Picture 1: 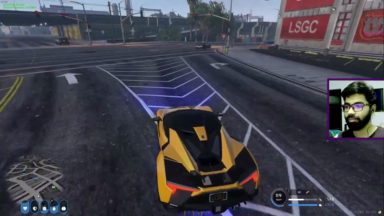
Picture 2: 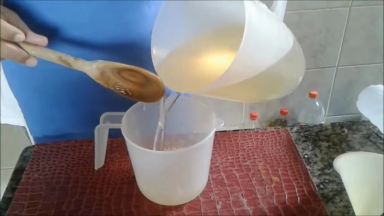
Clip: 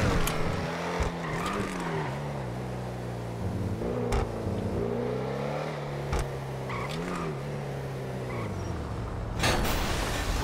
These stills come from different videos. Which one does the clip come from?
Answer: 1